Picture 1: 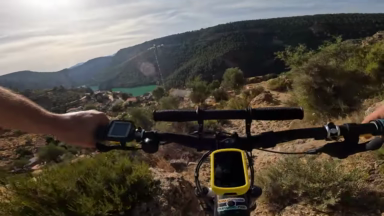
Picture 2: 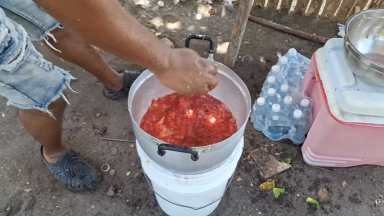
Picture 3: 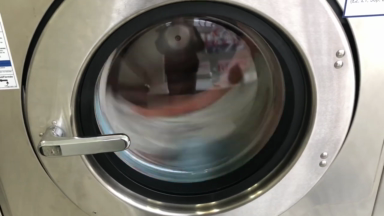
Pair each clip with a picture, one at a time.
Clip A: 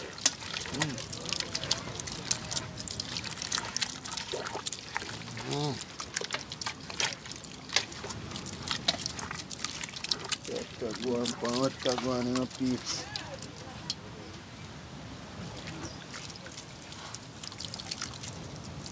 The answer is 2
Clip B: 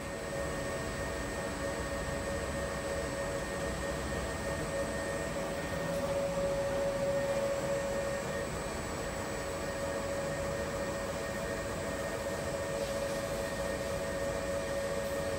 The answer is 3